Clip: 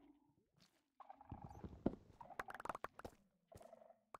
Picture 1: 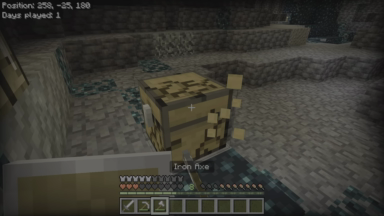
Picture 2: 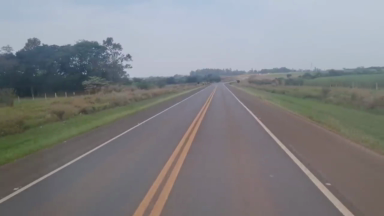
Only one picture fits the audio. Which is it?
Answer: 1